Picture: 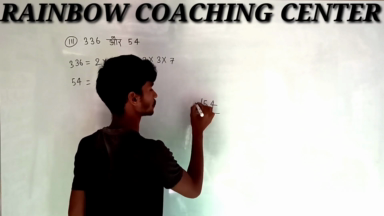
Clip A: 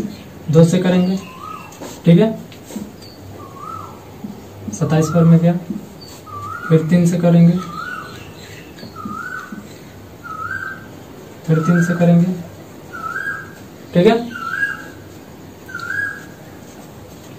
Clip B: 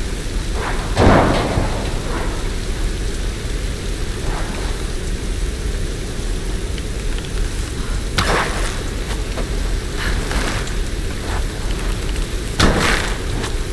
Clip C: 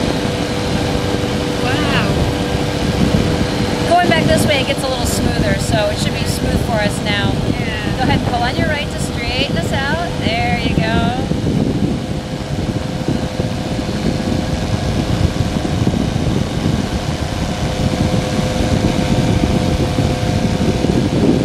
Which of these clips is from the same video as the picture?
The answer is A